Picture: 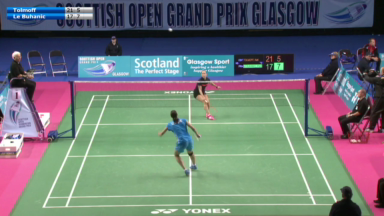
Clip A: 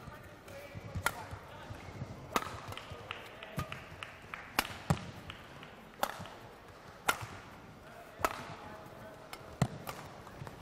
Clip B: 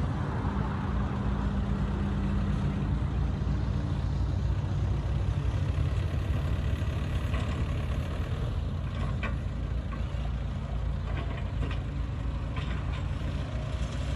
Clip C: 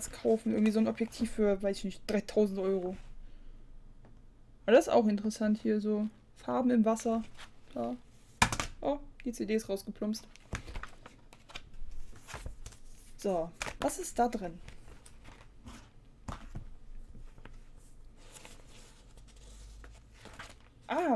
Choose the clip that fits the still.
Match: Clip A